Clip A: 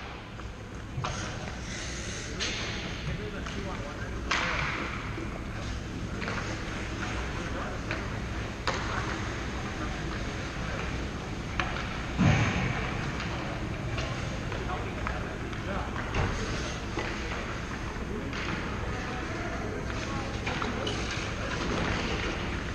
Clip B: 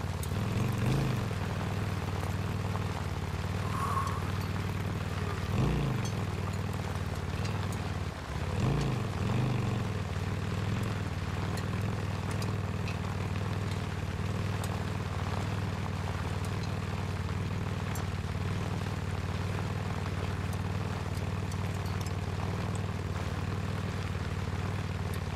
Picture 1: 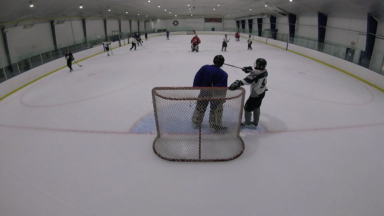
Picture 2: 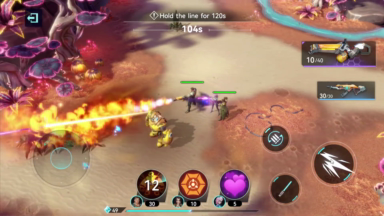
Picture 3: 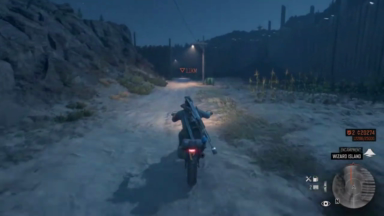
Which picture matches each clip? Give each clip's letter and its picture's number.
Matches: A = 1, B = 3